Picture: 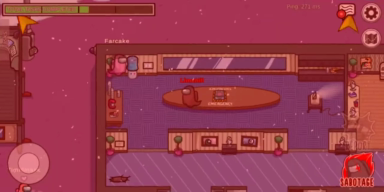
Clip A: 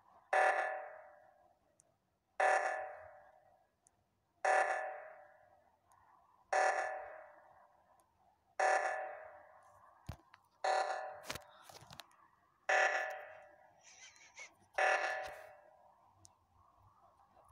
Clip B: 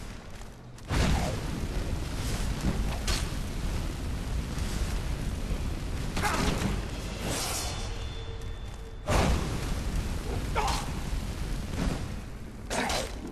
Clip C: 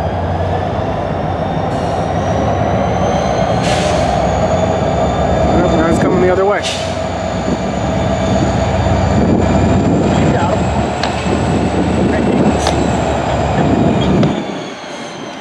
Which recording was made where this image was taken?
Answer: A